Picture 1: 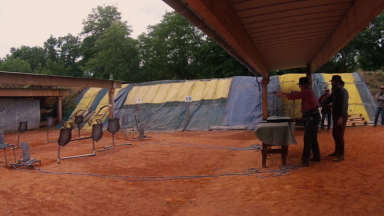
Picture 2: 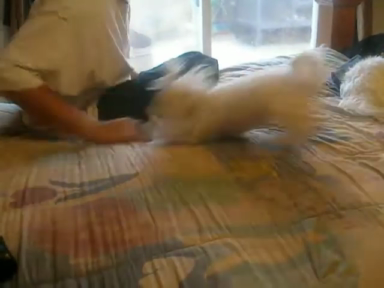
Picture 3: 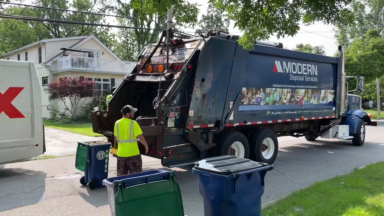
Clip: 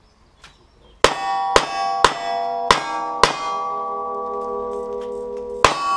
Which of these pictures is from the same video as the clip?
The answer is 1